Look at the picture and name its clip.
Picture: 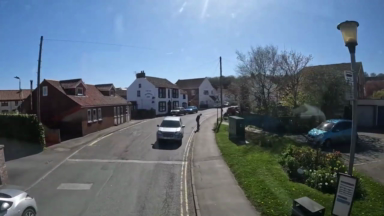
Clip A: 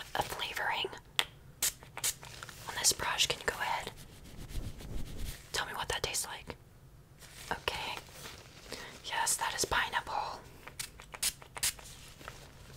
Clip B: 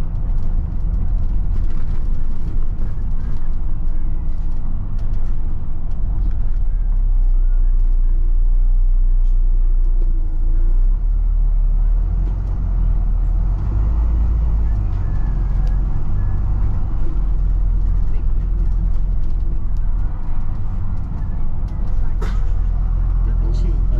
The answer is B